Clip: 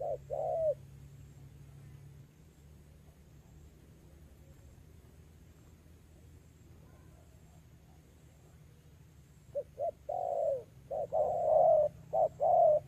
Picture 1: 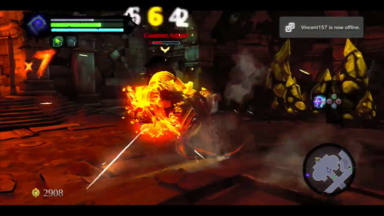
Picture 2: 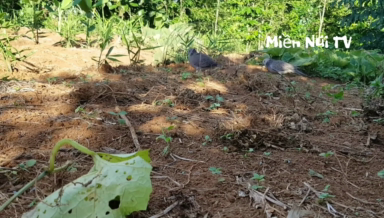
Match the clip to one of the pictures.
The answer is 2